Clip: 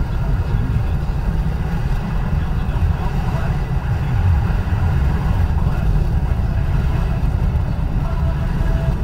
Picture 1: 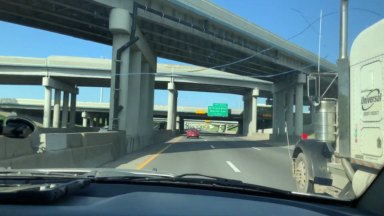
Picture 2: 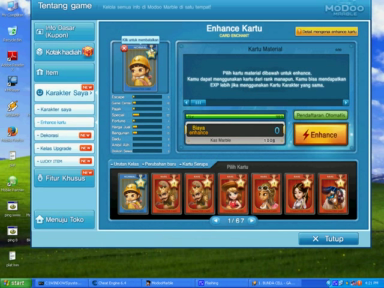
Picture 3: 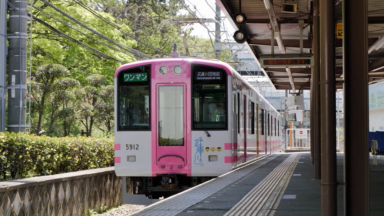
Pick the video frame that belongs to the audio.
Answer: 1